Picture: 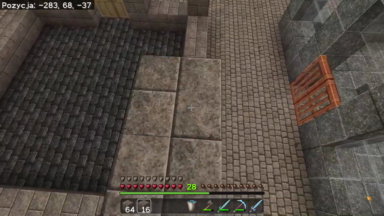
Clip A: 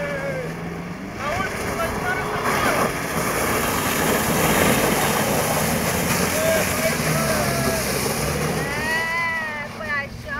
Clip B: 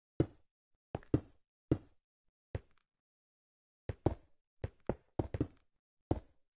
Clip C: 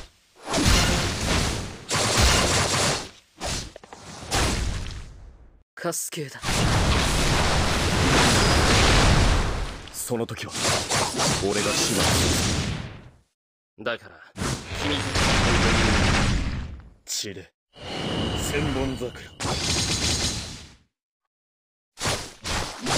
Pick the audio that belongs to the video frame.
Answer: B